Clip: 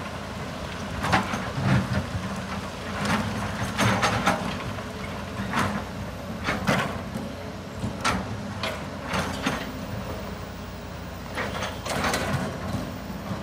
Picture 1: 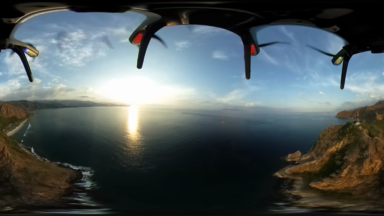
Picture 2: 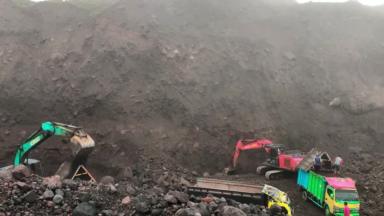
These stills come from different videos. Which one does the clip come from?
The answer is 2